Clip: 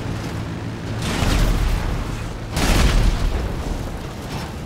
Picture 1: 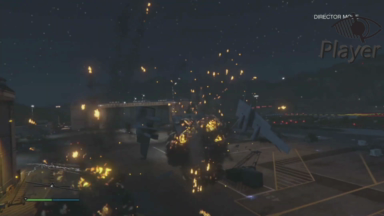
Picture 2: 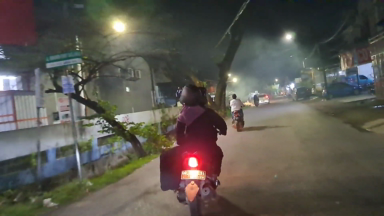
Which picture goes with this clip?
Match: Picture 1